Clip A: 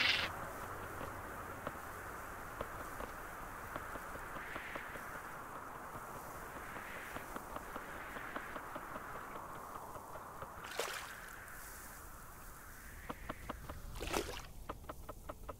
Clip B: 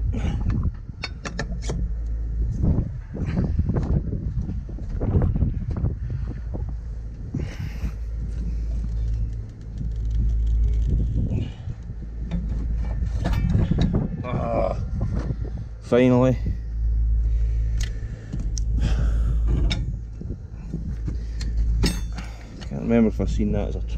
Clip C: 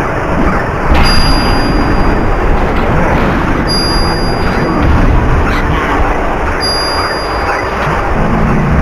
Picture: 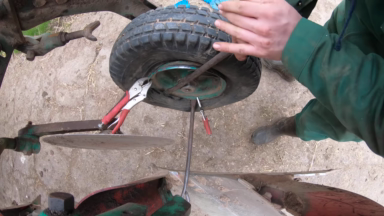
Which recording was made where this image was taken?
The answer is B